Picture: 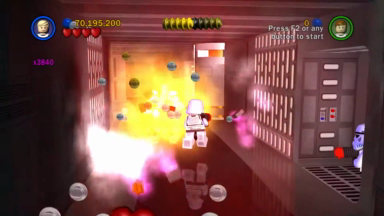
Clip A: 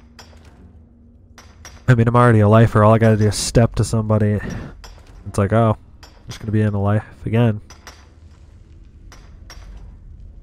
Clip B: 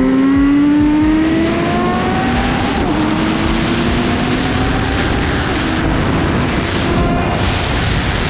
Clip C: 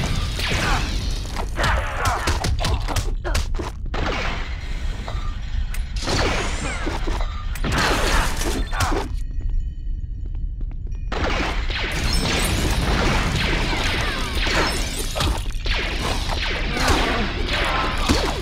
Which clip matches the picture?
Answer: C